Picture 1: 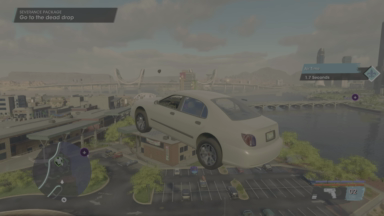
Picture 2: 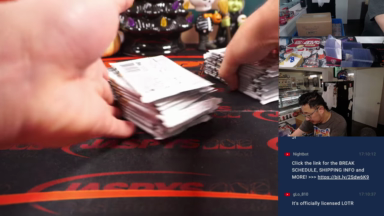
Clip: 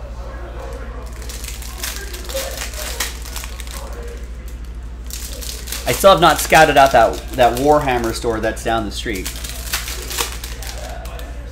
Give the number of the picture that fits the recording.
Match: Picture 2